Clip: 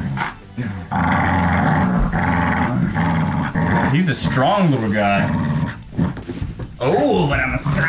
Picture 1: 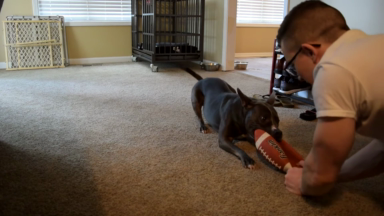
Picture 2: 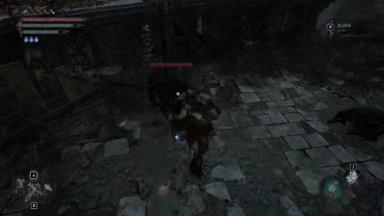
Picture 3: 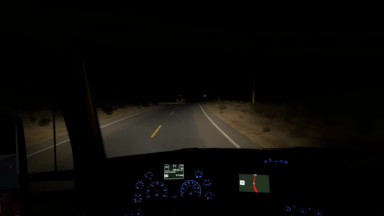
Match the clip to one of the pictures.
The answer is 1